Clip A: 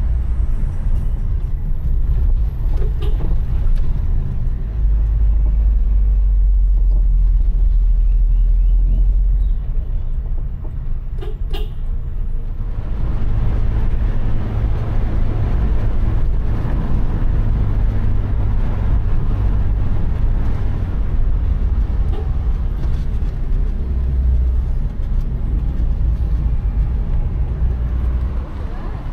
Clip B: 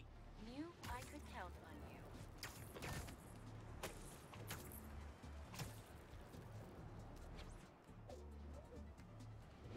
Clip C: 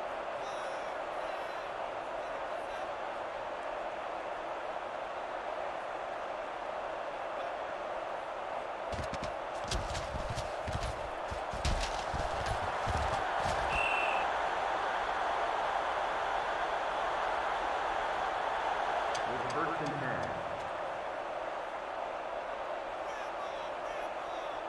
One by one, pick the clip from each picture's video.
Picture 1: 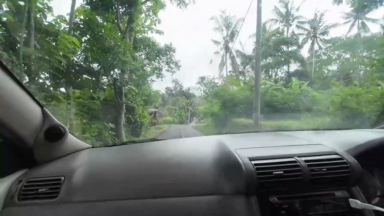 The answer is A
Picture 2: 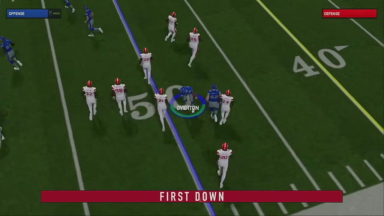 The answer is C